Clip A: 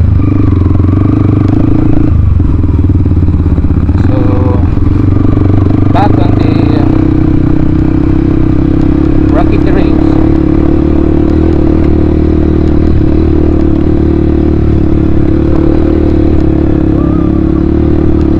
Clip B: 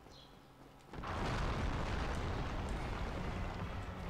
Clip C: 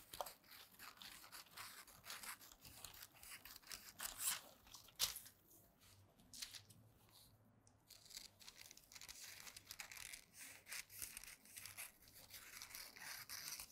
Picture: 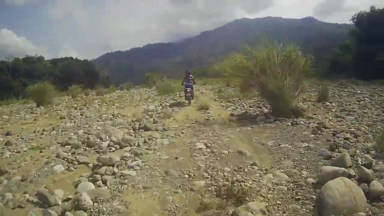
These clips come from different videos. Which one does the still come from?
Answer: A